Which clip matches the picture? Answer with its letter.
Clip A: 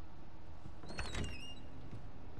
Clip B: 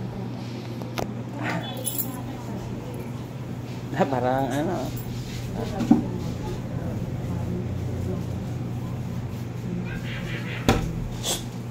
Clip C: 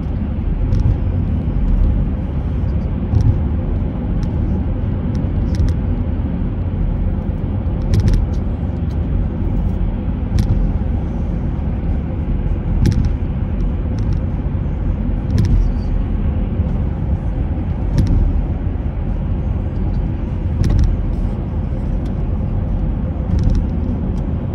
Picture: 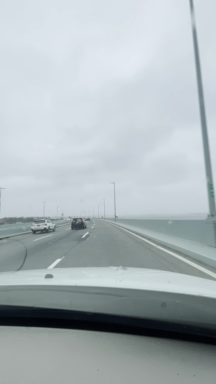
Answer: C